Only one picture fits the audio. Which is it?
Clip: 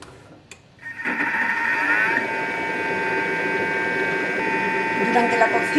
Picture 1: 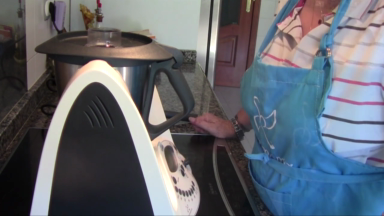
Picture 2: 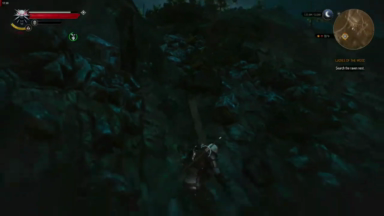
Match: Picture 1